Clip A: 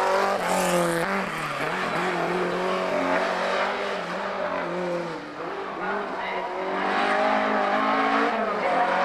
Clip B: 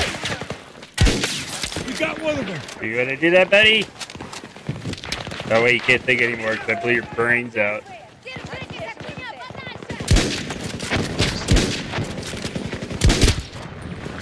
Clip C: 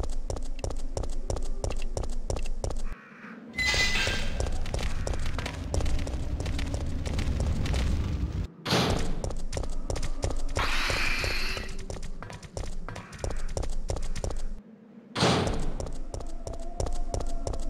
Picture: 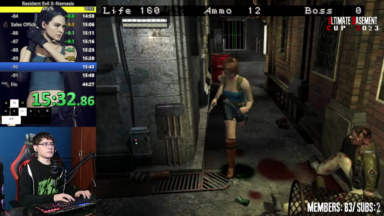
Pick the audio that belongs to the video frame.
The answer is C